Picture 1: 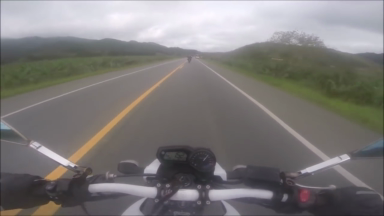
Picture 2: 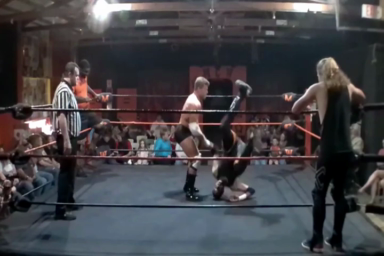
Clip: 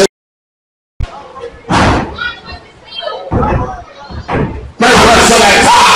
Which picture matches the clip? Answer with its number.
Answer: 2